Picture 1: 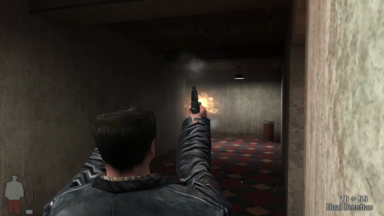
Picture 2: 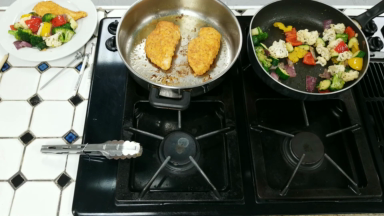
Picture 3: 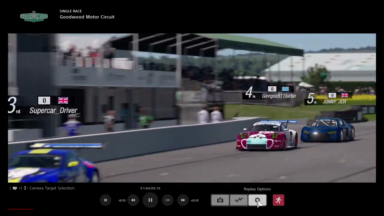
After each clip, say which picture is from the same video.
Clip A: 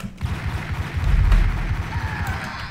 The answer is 1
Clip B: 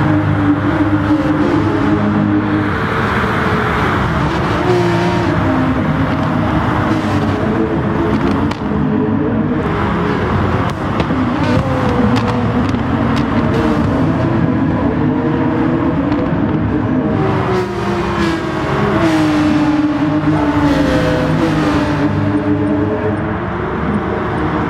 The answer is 3